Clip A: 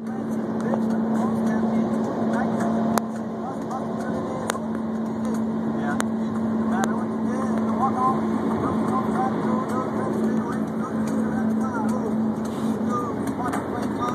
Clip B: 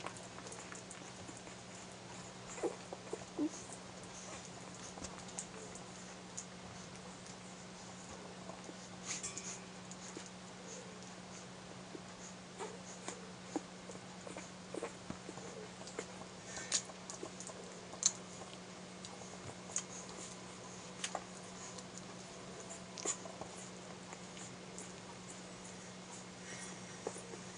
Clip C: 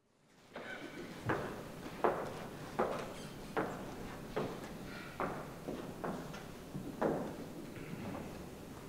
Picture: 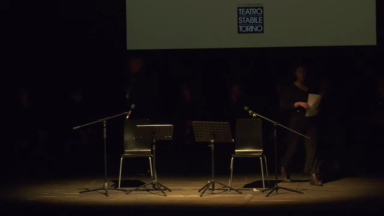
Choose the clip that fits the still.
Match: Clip C